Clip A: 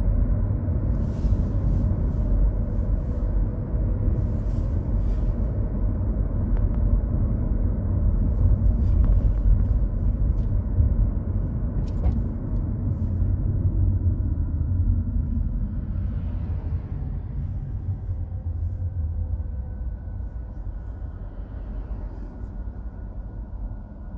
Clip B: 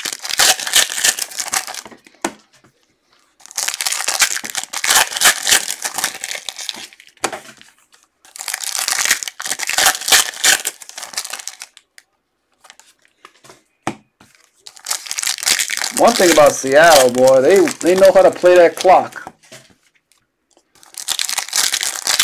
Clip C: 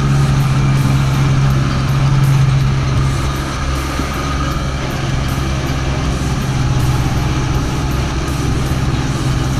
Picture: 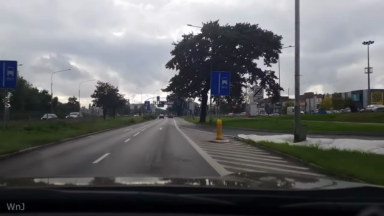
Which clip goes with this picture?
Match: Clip A